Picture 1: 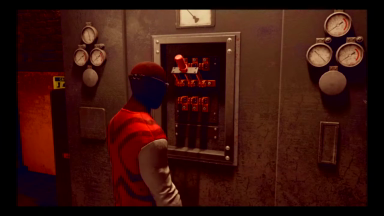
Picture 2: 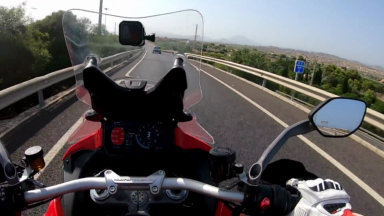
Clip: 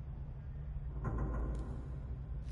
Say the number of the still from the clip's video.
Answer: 1